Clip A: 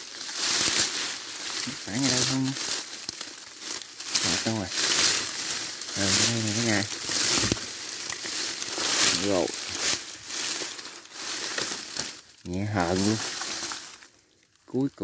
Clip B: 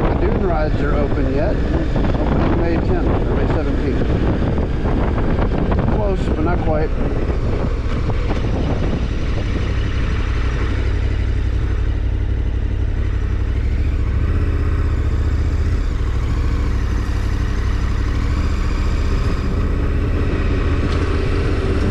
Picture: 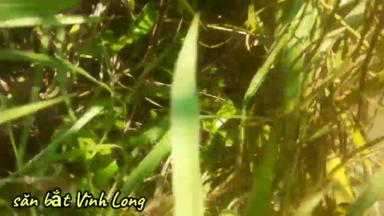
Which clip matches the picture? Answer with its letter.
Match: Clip A